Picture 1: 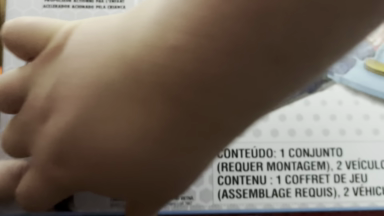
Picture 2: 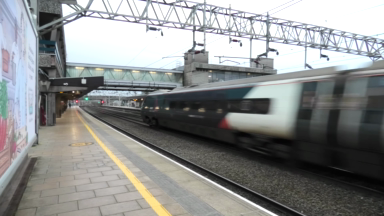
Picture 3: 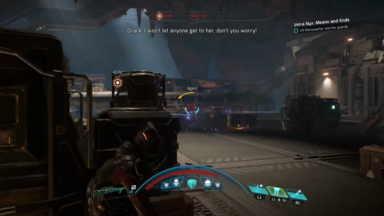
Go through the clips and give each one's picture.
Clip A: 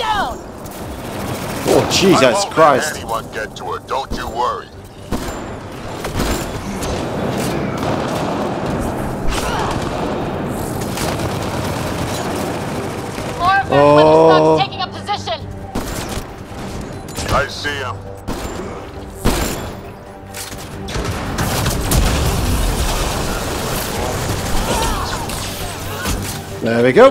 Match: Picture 3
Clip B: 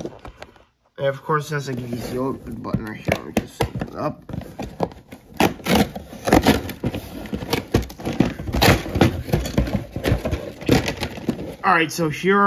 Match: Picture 1